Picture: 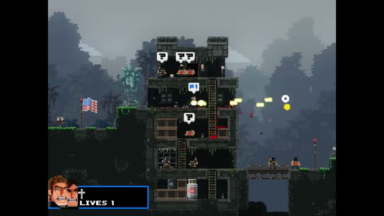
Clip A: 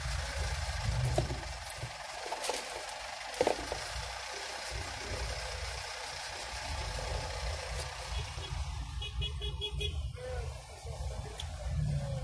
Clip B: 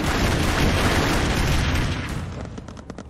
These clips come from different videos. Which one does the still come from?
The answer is B